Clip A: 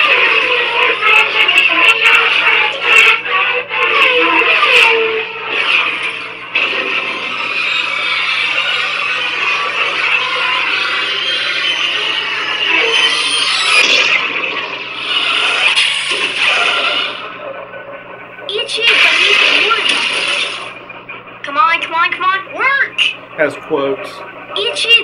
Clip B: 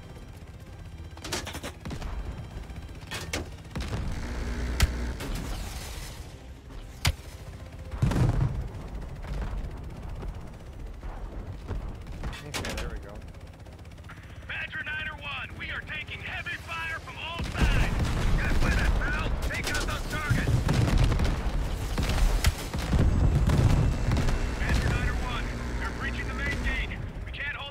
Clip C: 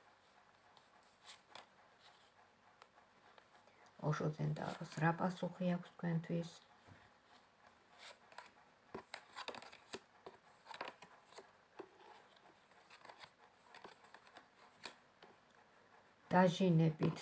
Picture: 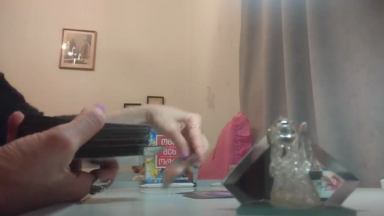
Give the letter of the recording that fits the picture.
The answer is C